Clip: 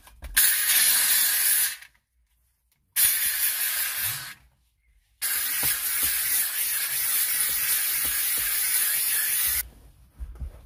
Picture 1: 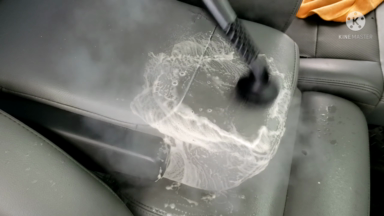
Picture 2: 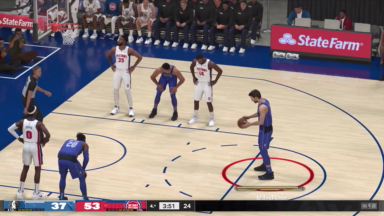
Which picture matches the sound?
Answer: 1